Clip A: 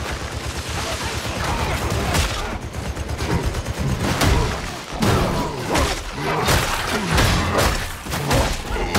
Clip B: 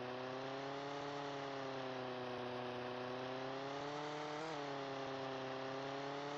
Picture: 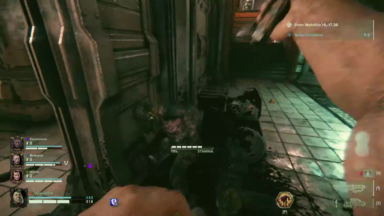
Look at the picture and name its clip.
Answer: A